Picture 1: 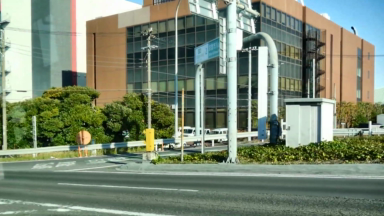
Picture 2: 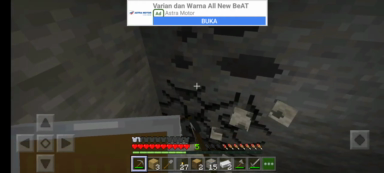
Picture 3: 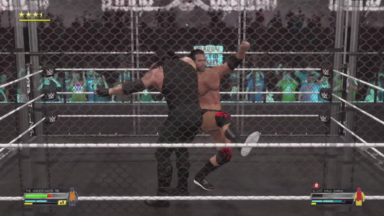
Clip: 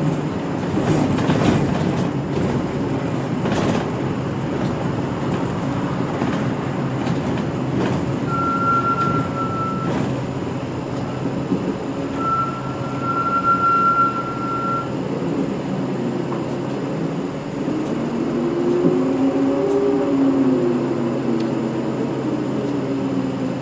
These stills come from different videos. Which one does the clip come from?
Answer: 1